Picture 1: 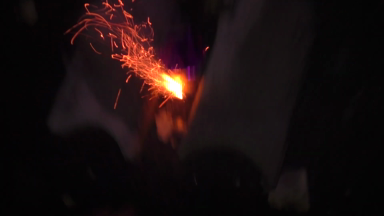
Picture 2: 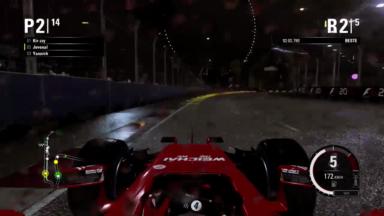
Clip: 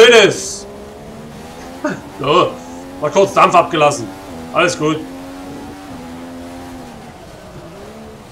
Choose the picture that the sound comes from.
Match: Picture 2